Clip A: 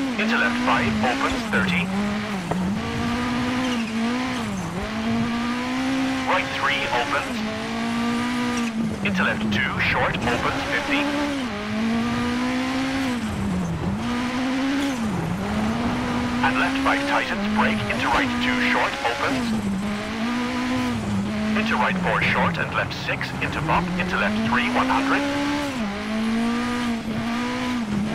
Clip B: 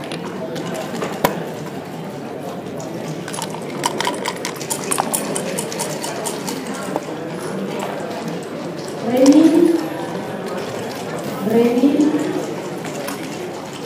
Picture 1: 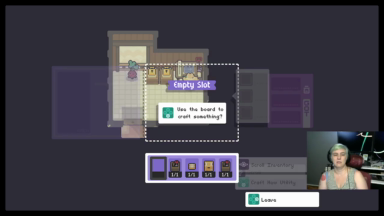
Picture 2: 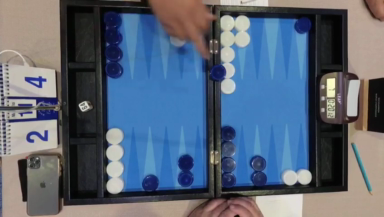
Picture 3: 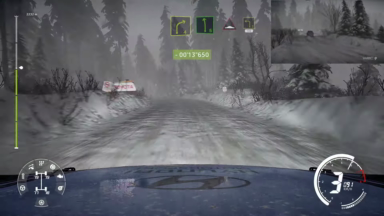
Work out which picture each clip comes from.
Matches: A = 3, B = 2